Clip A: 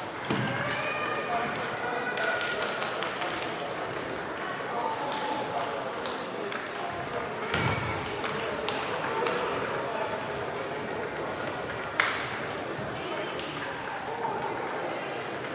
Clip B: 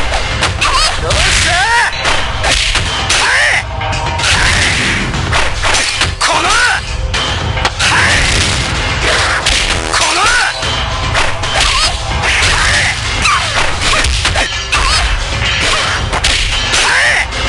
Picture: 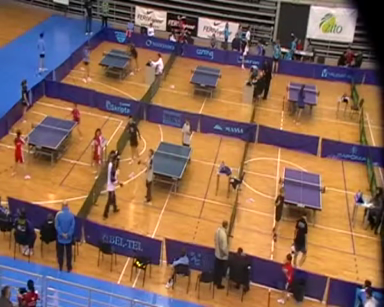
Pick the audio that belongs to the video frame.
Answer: A